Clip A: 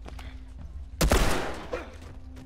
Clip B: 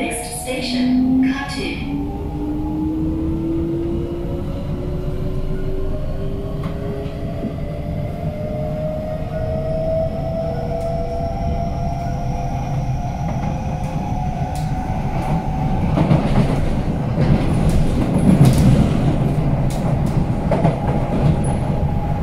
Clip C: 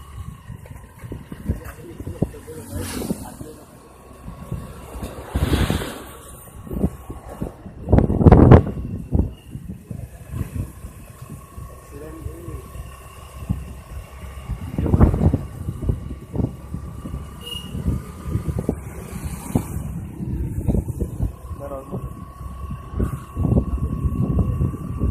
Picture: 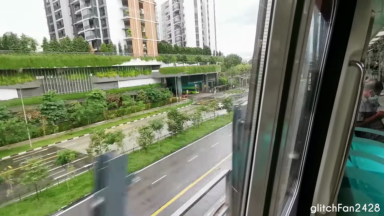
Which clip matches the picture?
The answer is B